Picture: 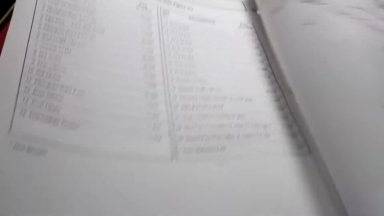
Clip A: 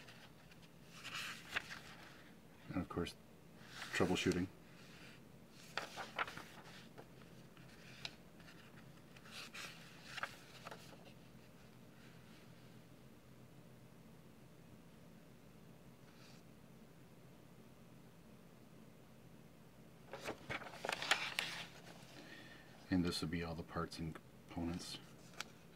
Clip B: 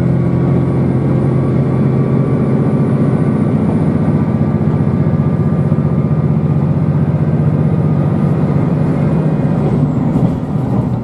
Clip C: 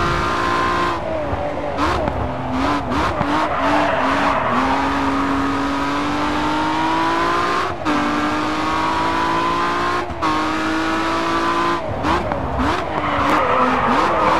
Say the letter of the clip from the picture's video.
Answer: A